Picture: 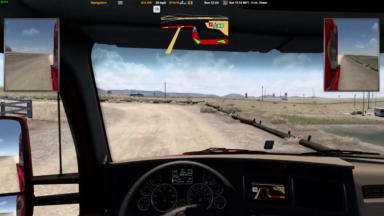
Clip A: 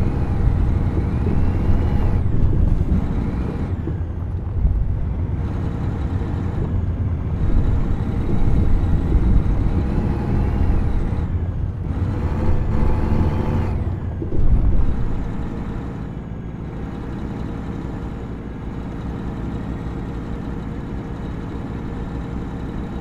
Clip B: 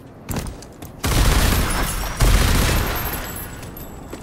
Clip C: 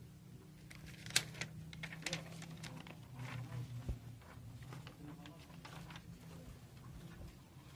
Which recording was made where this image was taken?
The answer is A